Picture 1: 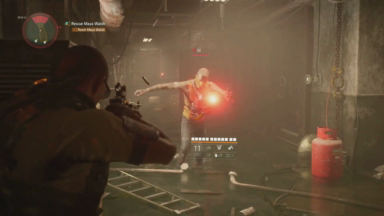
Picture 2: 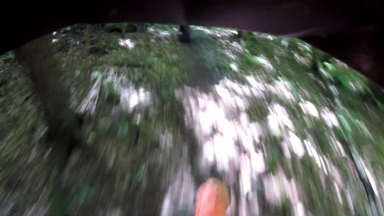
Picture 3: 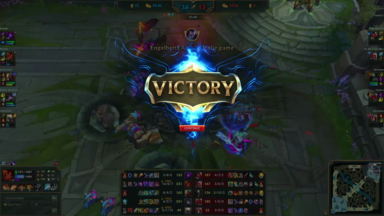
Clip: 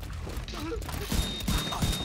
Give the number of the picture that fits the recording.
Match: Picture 1